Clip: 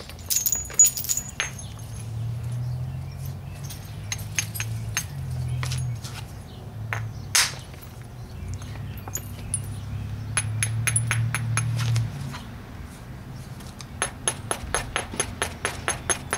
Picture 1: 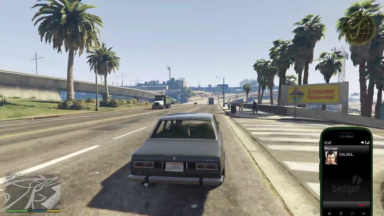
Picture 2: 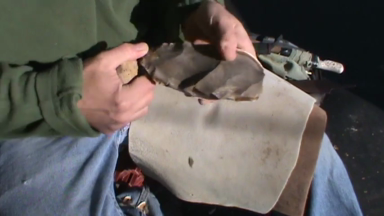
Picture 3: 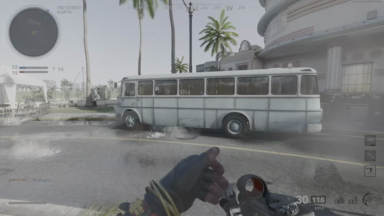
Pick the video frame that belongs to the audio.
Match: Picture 2